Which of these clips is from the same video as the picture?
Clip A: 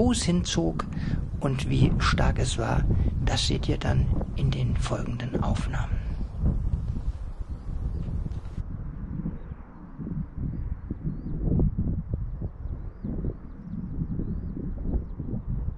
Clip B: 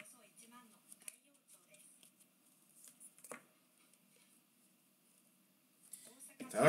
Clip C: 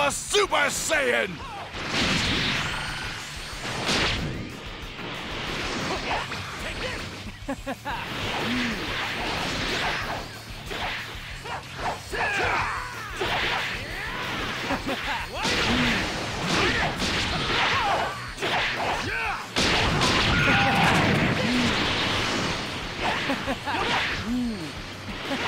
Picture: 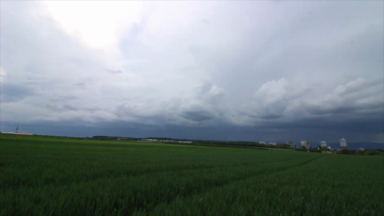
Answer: A